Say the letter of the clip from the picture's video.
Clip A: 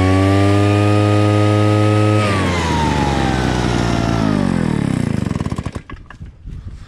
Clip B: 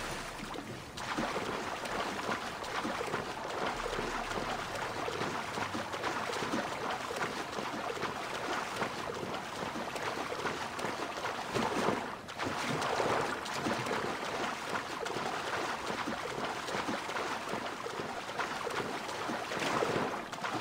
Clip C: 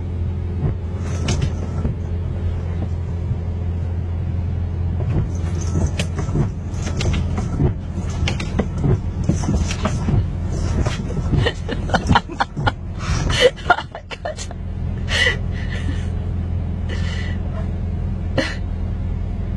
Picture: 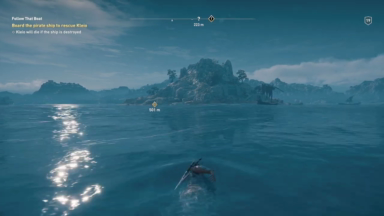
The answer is B